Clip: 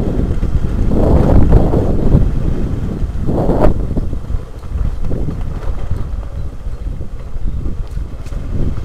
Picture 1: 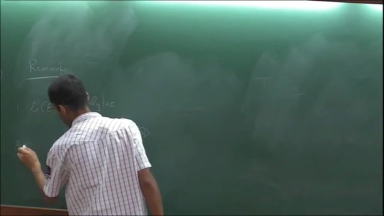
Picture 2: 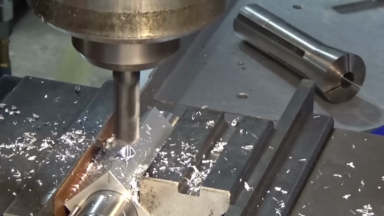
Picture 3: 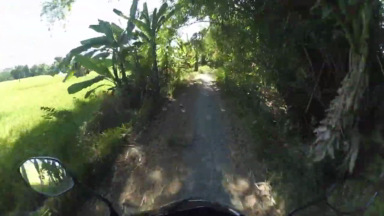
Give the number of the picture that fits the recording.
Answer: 3